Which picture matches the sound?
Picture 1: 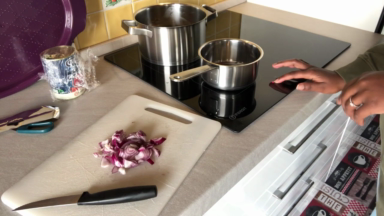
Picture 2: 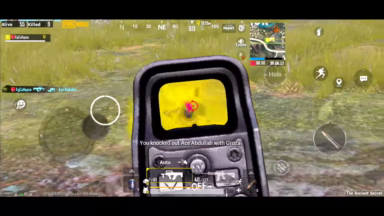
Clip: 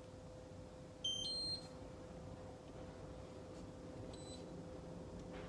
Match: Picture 1